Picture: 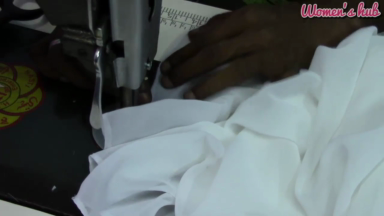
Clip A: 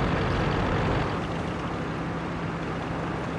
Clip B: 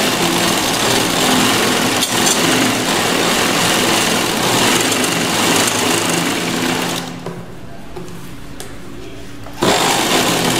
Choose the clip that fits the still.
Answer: B